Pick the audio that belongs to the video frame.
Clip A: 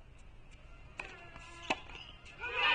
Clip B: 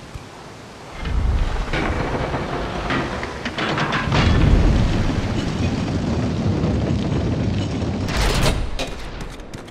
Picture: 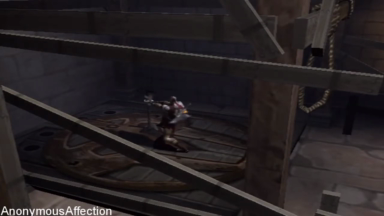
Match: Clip B